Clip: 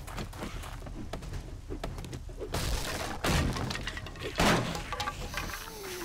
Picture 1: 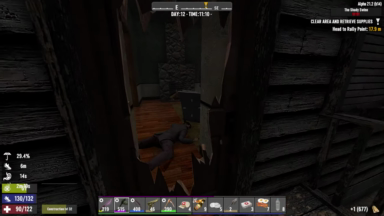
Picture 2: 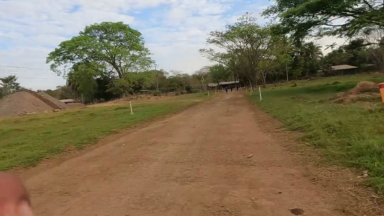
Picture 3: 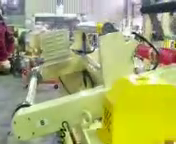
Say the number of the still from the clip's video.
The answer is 1